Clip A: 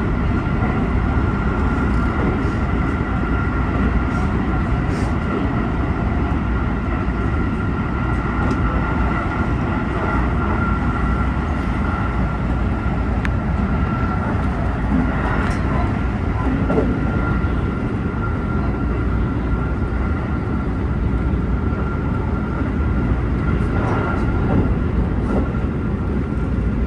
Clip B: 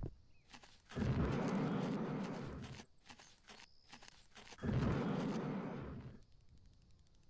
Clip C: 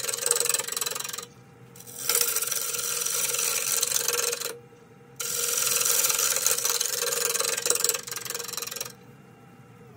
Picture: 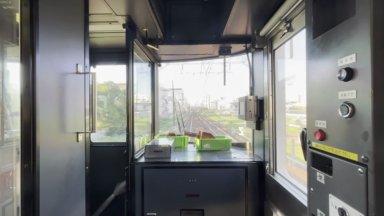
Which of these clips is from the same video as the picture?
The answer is A